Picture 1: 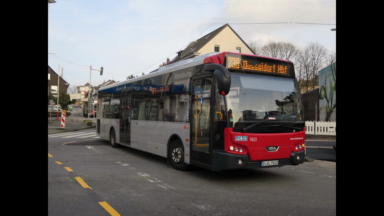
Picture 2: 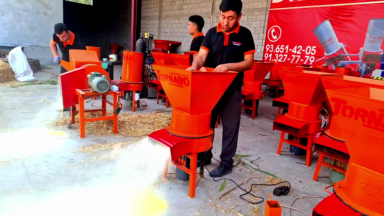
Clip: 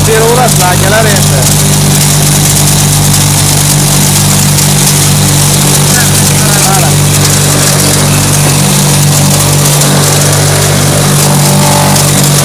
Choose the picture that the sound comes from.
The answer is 2